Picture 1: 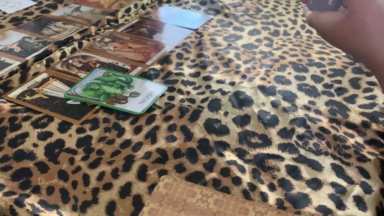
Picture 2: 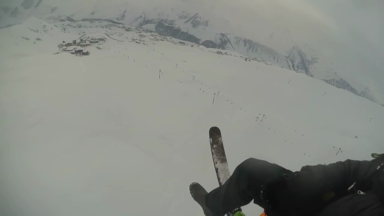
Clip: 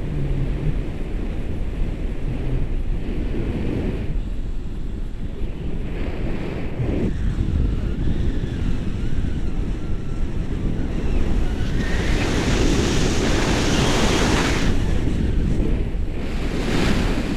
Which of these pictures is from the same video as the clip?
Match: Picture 2